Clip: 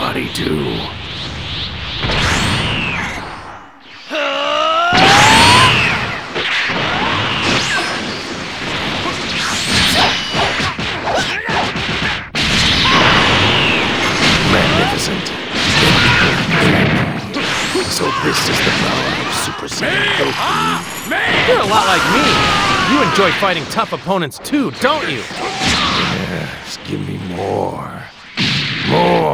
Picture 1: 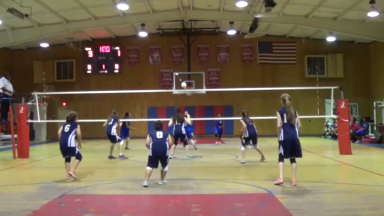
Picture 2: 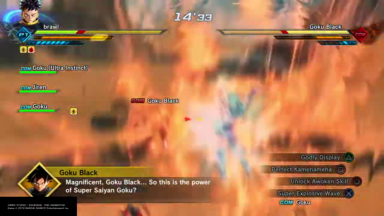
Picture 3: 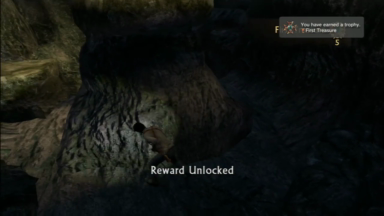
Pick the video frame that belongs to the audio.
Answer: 2